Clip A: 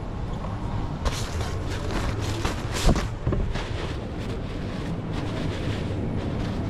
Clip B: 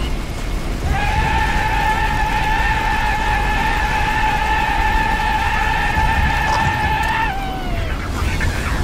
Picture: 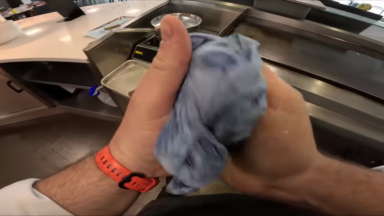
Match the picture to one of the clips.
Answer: A